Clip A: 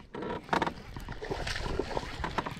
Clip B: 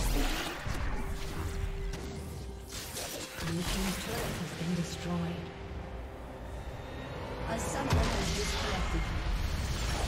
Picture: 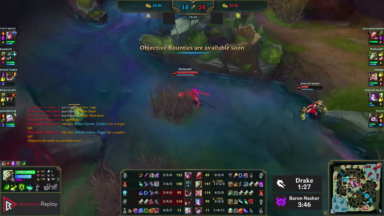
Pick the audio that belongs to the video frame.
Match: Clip B